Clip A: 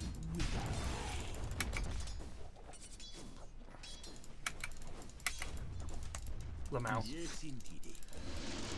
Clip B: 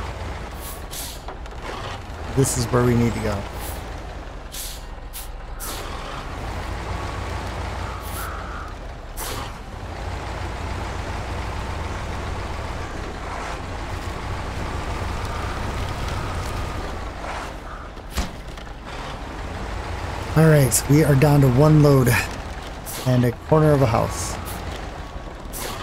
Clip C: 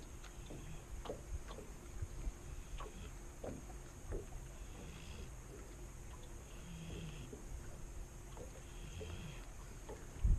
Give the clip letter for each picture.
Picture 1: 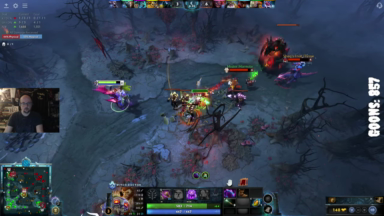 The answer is A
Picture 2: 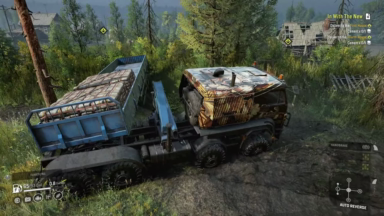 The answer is B